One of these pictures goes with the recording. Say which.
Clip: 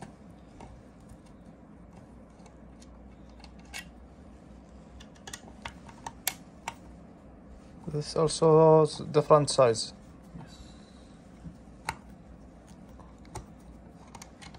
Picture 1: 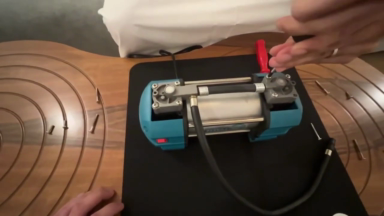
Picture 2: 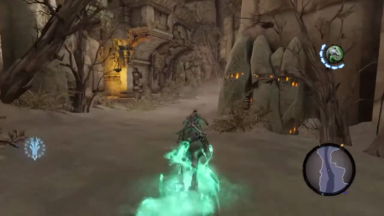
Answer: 1